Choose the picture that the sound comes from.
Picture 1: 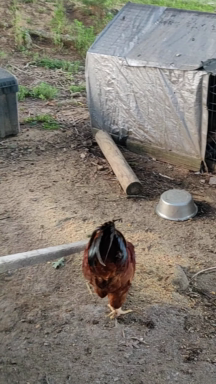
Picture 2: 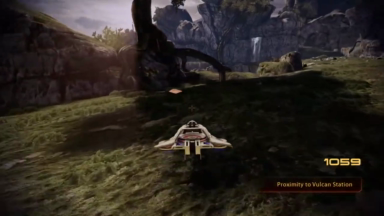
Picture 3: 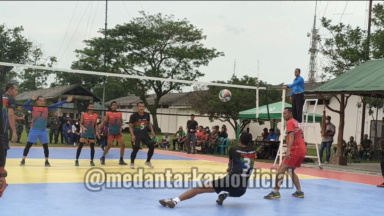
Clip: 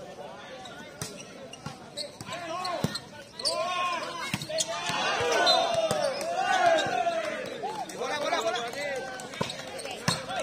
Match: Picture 3